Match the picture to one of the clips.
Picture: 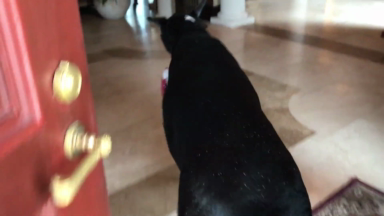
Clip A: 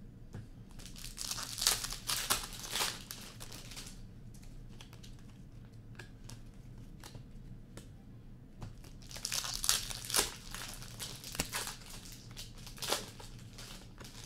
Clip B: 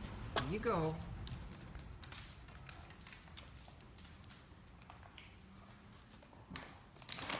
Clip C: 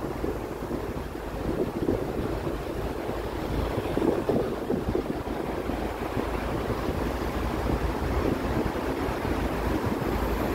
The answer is B